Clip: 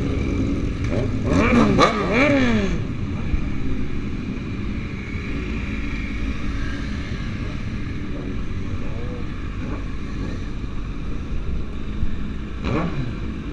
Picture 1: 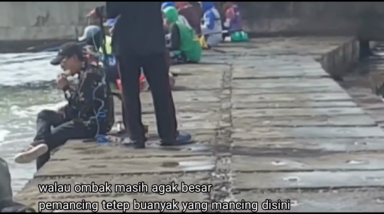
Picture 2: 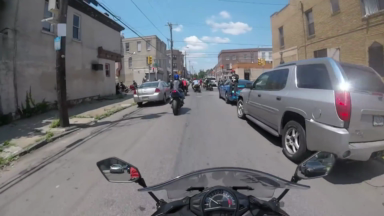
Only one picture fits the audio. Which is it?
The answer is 2